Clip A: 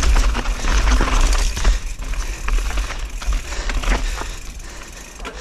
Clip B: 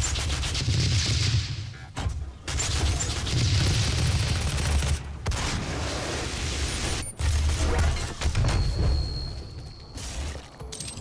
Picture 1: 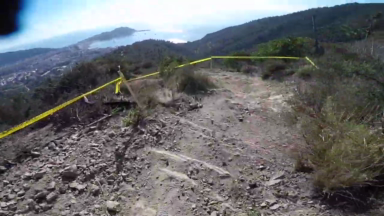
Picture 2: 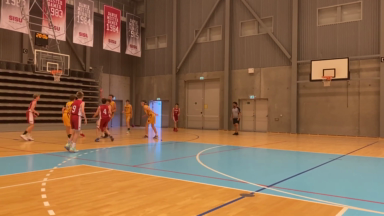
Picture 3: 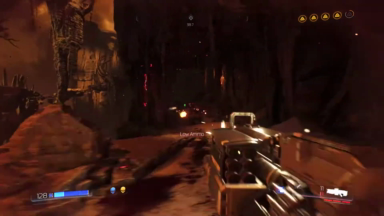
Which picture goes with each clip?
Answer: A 1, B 3